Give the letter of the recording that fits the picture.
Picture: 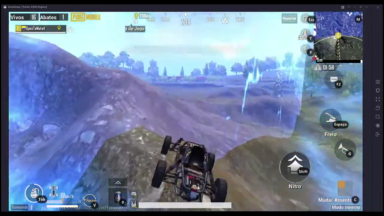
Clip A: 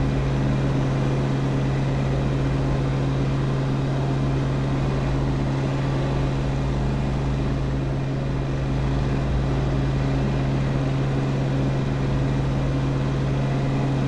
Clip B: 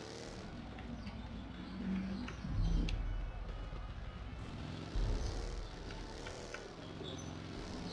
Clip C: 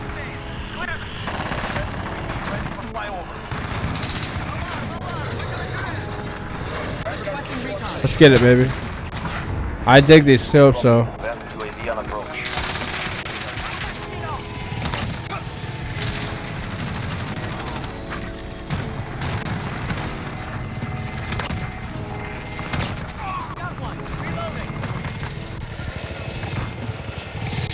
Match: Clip B